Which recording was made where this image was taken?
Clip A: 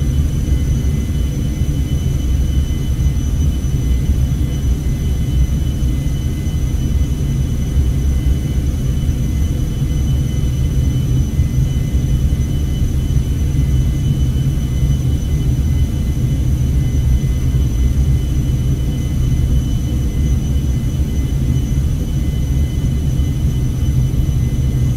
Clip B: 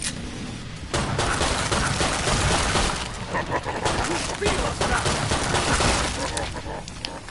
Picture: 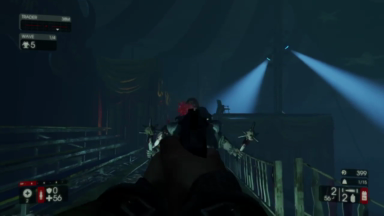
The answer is B